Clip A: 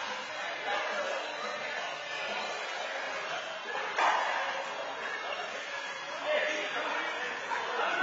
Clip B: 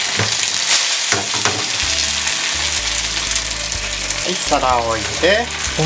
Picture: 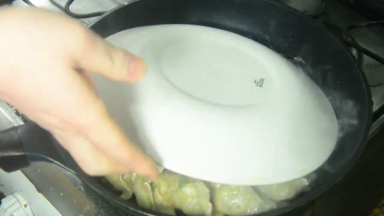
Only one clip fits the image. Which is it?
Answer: B